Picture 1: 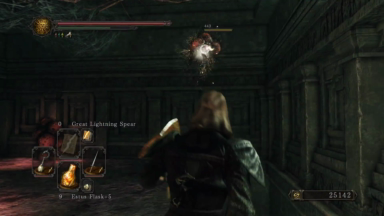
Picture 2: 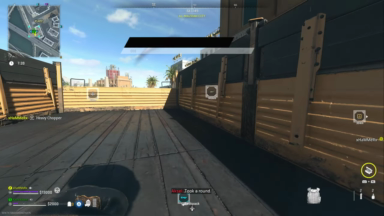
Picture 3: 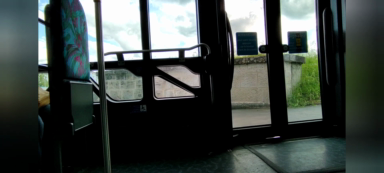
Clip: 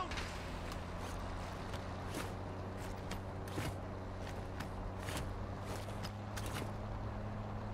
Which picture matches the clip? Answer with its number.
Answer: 2